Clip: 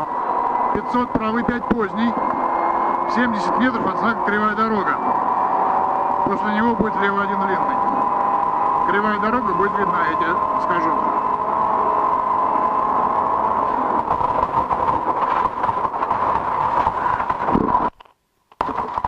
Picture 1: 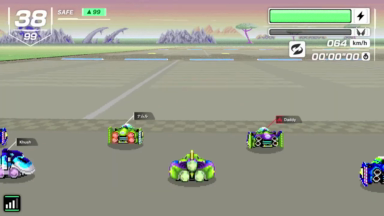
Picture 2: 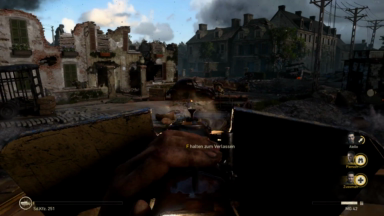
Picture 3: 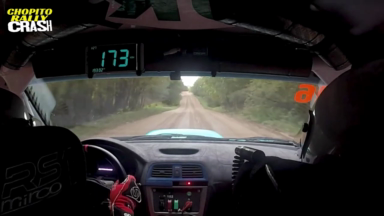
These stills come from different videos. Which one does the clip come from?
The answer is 3